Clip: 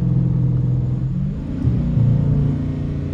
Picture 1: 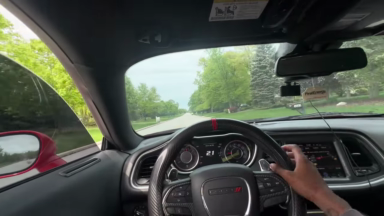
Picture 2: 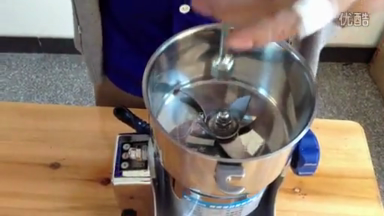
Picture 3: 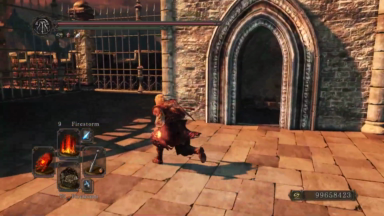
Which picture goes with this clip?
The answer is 1